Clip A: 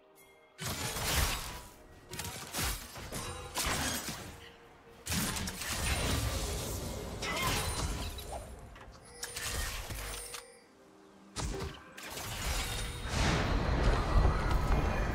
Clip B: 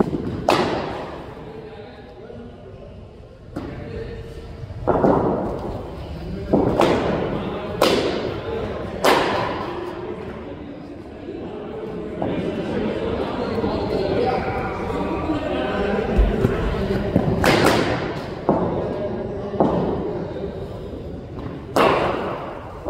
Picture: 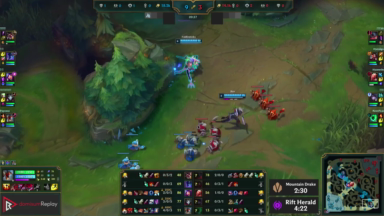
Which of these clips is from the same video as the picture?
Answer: A